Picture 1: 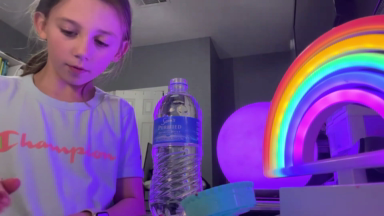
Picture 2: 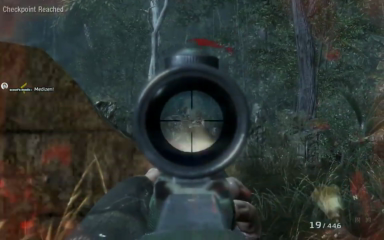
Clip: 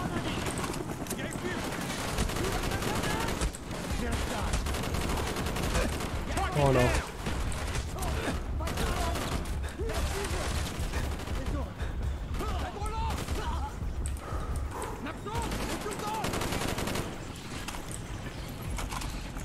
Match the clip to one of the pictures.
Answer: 2